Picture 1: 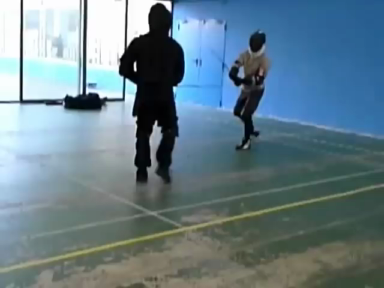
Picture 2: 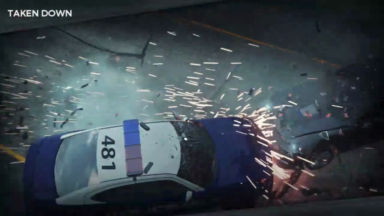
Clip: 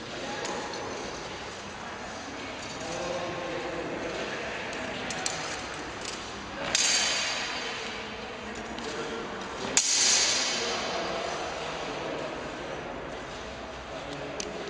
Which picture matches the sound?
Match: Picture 1